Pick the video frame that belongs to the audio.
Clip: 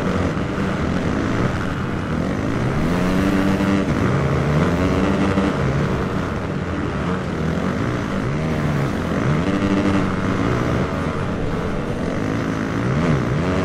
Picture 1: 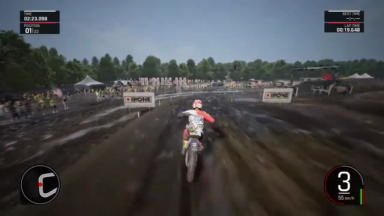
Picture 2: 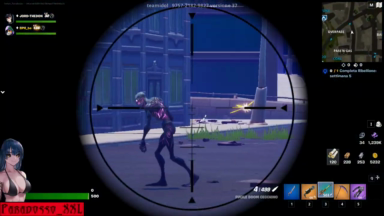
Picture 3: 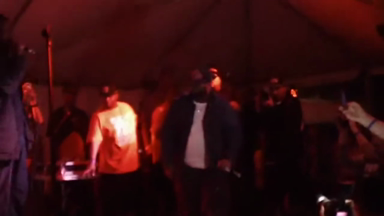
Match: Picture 1